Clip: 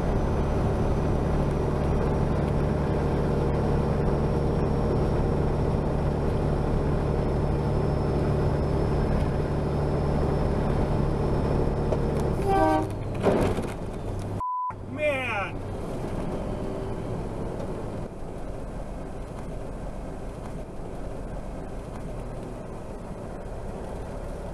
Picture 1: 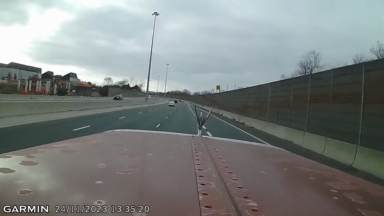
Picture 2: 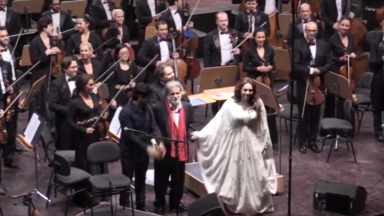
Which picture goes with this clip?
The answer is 1